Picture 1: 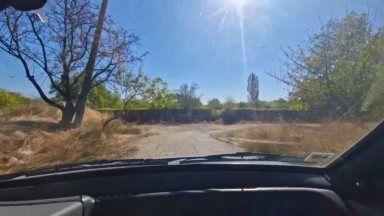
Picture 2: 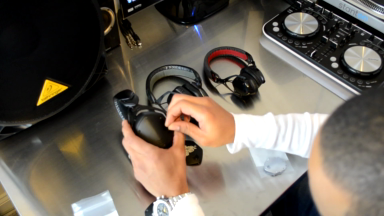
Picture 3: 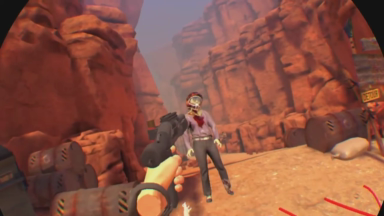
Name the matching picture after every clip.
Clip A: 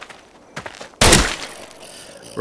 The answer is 3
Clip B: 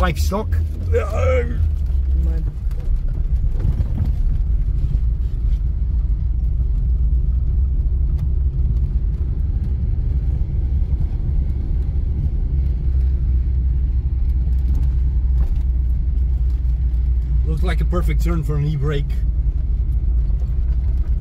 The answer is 1